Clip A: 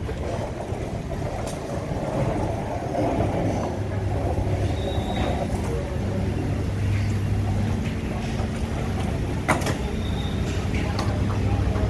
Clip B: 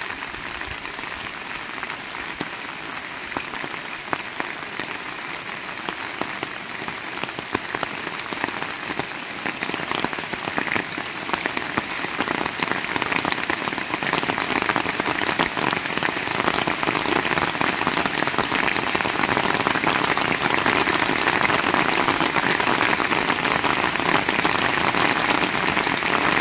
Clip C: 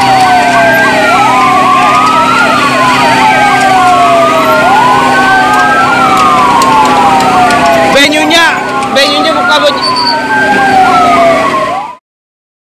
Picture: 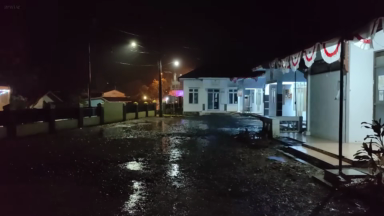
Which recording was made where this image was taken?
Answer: B